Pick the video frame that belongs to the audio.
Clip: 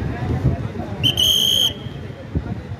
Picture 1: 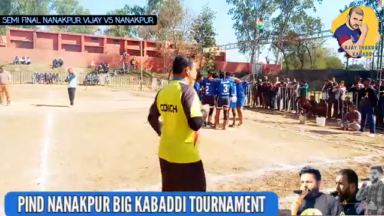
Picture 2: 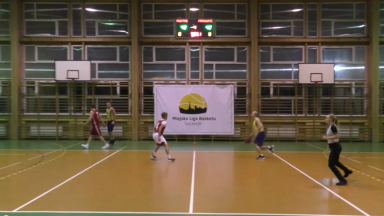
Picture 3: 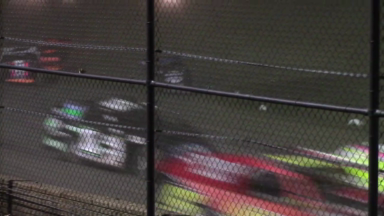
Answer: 1